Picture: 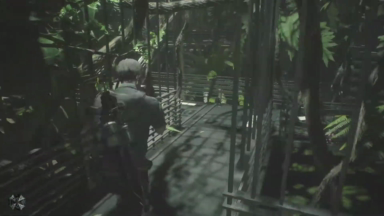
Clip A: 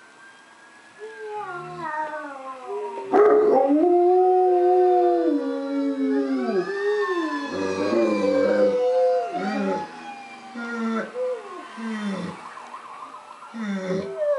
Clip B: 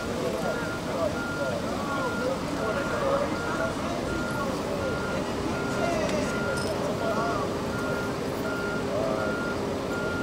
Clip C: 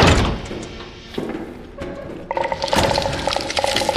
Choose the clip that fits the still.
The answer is C